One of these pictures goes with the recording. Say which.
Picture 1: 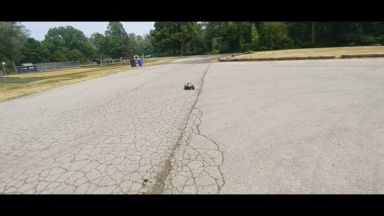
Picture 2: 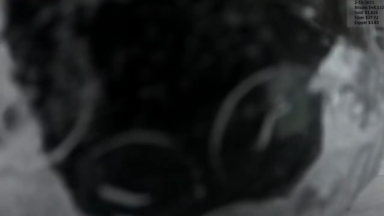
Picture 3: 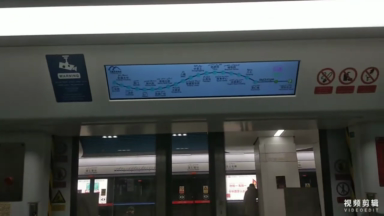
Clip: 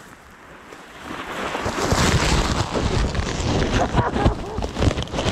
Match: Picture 2